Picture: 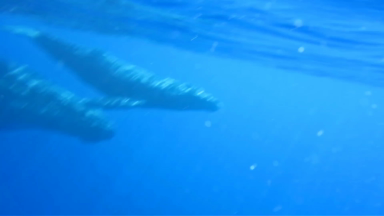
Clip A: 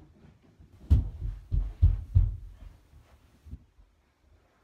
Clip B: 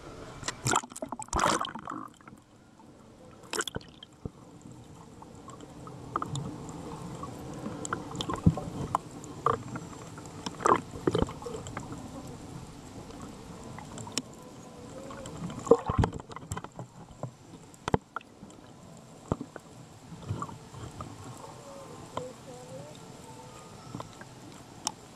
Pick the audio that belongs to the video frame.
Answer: B